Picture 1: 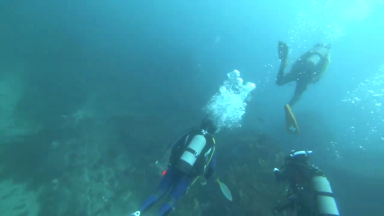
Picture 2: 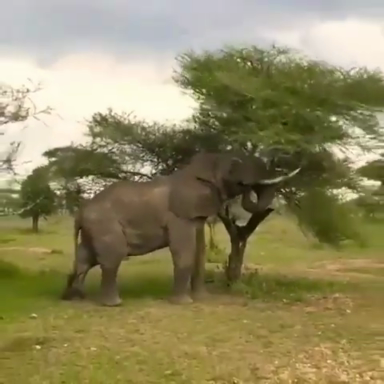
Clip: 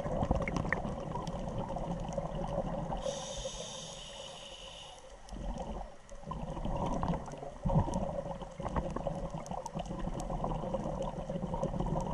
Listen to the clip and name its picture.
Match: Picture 1